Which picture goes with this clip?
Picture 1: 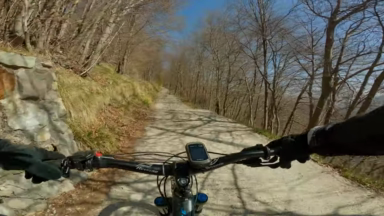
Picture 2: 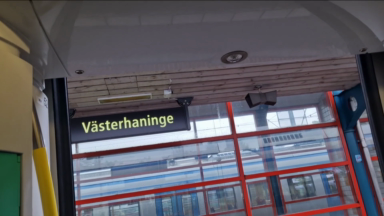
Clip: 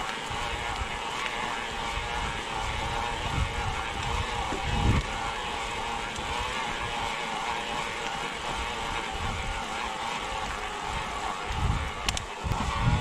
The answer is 1